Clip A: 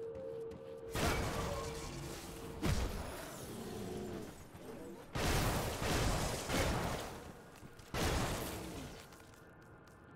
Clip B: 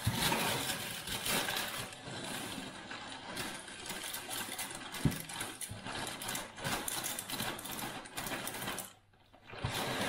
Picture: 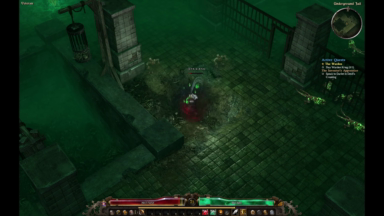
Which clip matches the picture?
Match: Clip A